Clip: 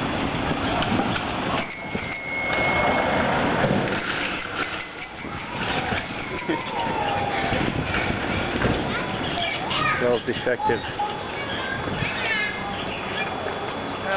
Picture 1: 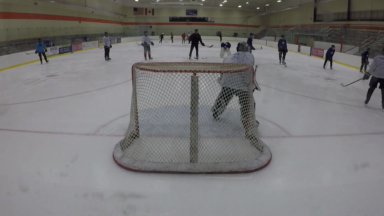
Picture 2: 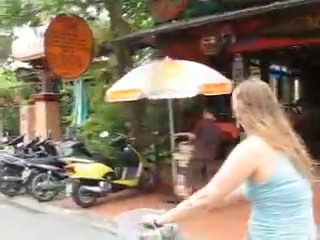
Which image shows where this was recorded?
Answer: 2